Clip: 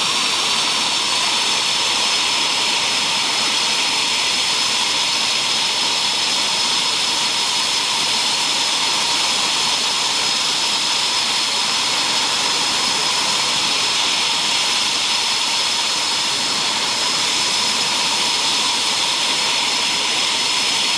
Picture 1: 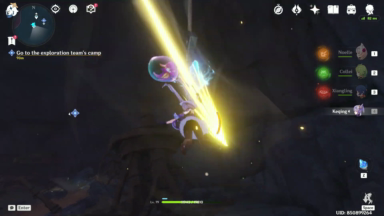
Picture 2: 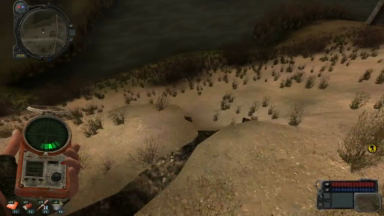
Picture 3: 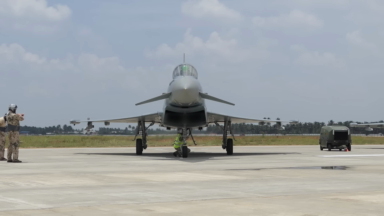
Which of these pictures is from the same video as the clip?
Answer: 3